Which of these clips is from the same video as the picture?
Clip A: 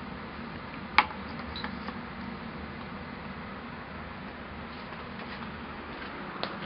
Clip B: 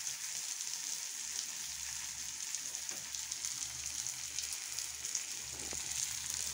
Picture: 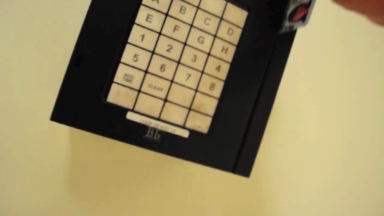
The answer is A